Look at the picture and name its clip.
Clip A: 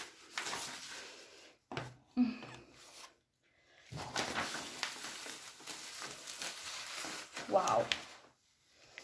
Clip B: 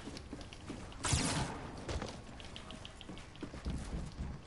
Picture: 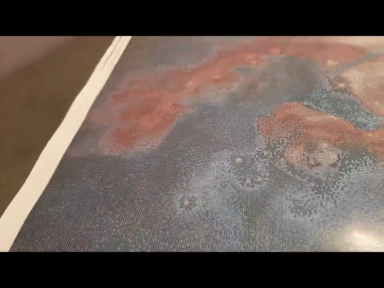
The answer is A